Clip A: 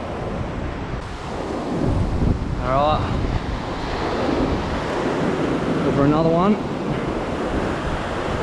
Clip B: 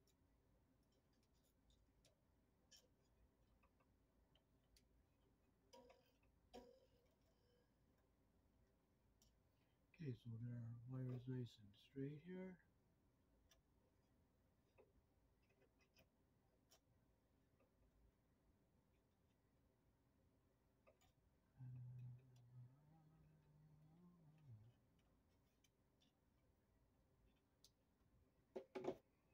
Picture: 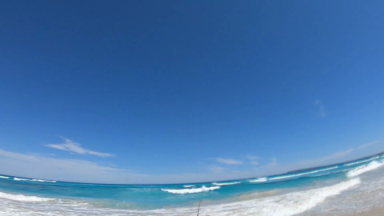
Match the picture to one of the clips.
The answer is A